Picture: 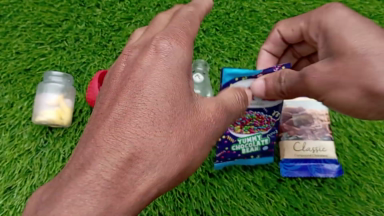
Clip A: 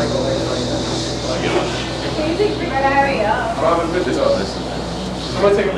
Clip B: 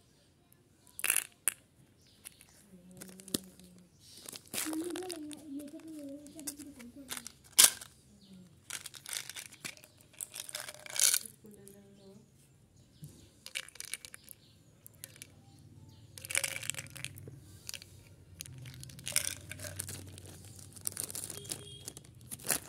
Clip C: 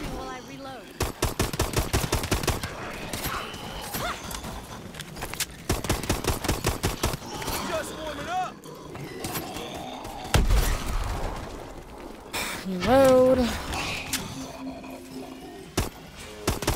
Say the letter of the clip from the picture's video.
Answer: B